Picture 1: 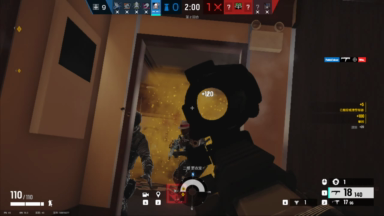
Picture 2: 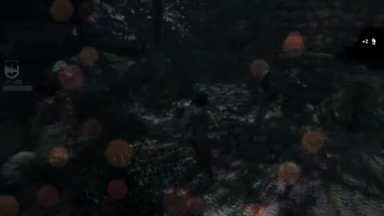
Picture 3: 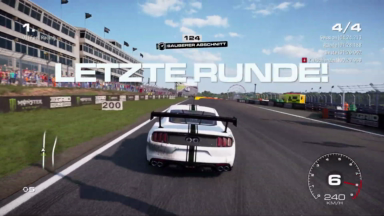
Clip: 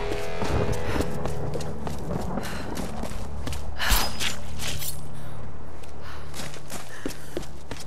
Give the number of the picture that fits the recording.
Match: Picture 2